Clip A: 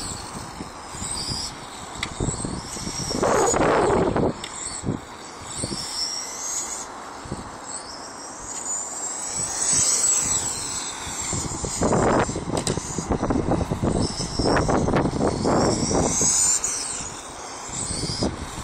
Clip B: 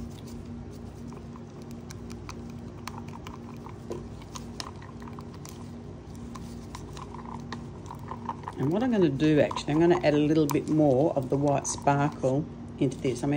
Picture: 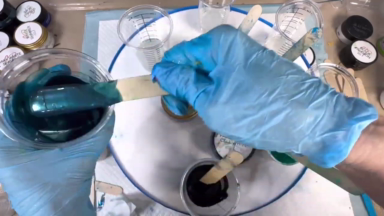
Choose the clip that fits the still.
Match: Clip B